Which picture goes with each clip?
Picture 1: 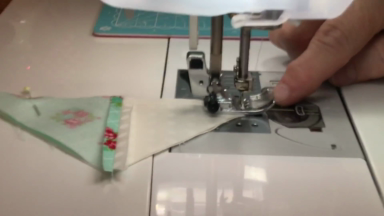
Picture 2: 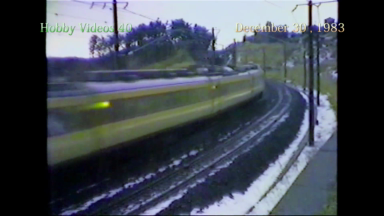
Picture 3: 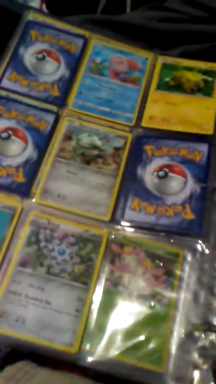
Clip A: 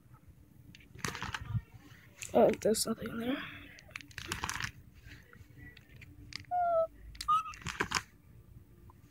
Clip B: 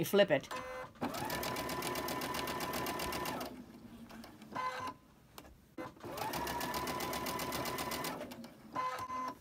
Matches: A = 3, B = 1